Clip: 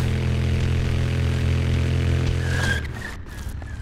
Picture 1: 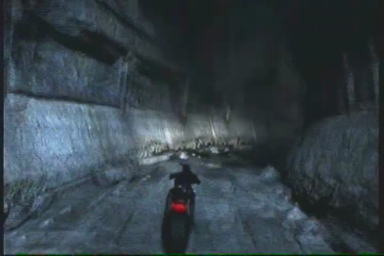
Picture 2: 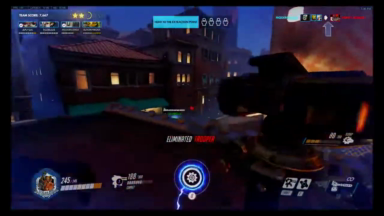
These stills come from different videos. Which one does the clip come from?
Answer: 1